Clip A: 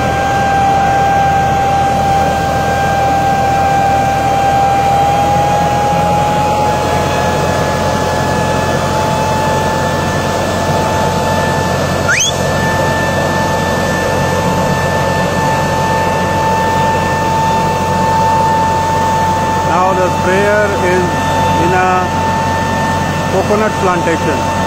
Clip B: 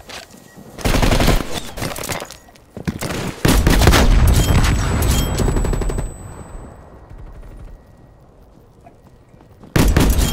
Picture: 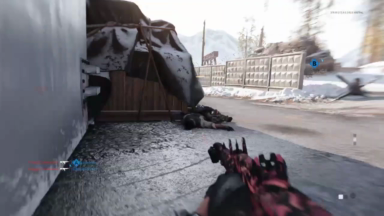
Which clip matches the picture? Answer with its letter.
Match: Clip B